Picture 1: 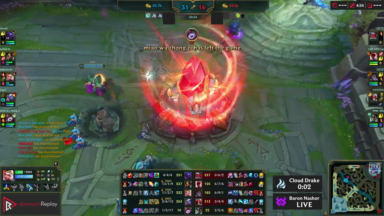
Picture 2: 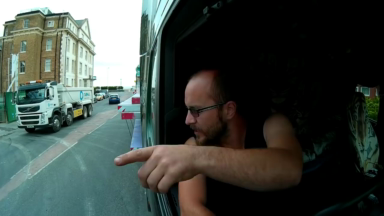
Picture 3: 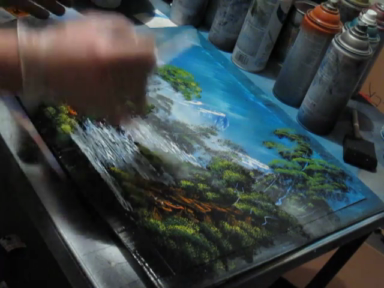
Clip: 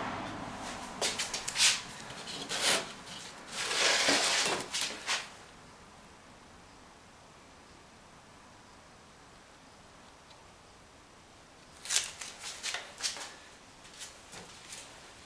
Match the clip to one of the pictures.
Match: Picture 3